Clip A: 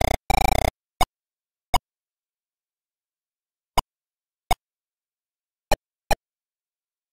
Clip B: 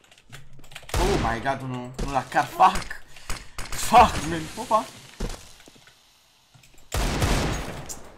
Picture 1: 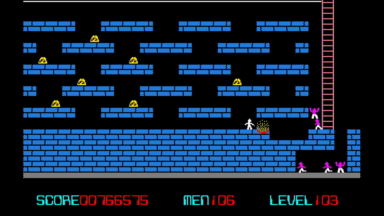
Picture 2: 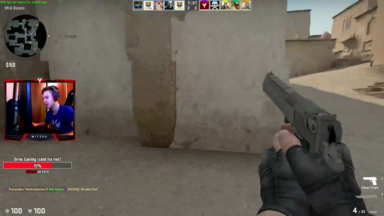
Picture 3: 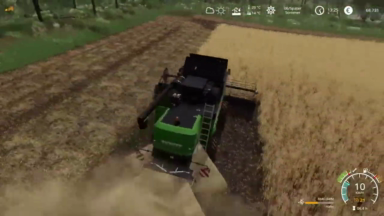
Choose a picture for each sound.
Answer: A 1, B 2